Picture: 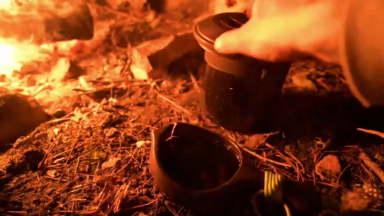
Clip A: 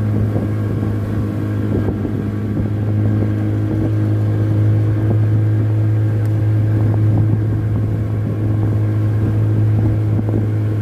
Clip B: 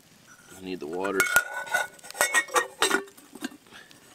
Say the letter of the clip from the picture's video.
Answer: B